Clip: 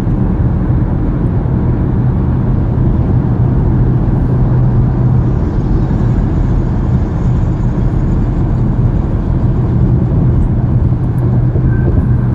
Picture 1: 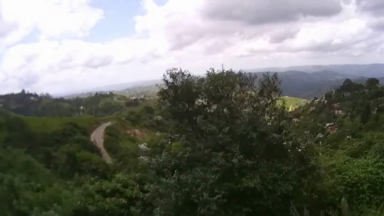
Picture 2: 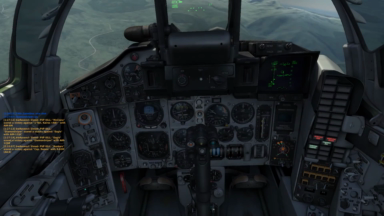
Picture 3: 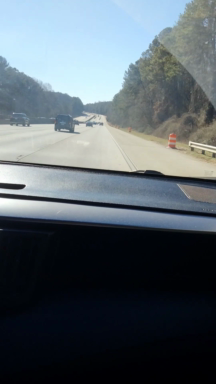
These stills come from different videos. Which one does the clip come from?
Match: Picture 3